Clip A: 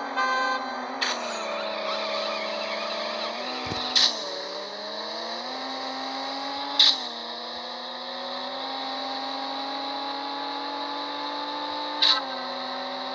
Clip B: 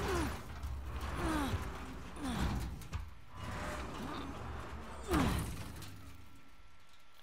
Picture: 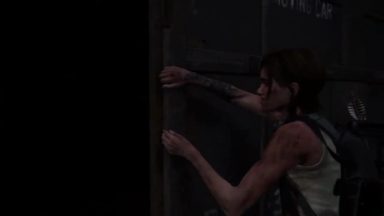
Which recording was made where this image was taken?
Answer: B